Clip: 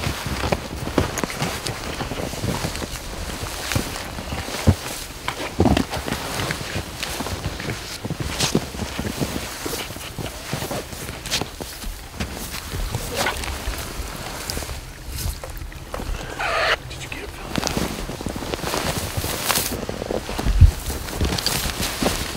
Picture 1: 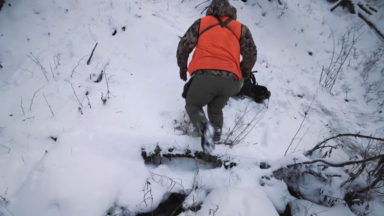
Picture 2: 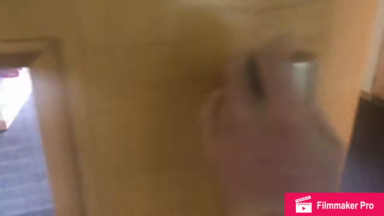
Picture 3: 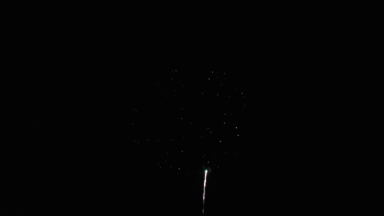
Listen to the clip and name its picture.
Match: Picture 1